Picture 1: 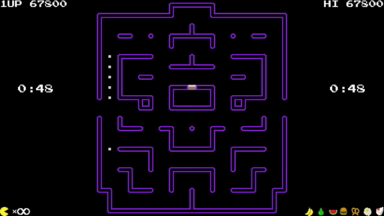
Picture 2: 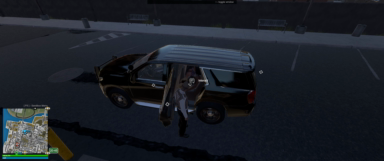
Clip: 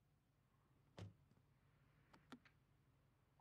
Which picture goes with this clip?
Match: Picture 2